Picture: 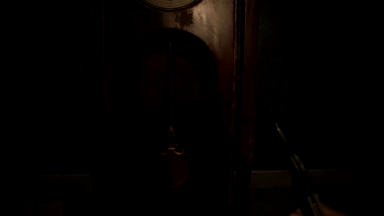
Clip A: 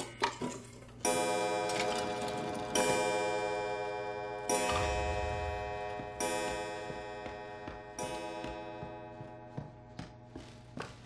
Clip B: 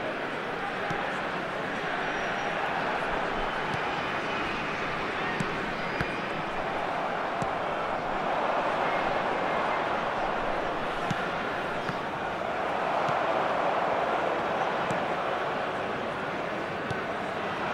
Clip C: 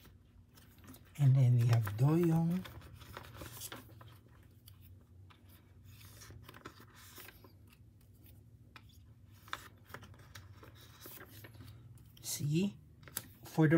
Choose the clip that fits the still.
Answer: A